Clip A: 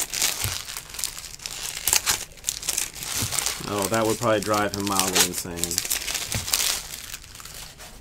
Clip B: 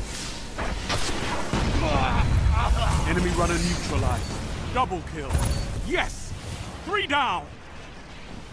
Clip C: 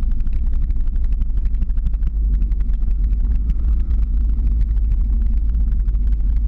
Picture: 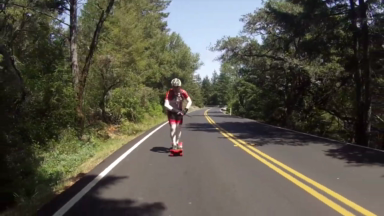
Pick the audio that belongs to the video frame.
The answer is C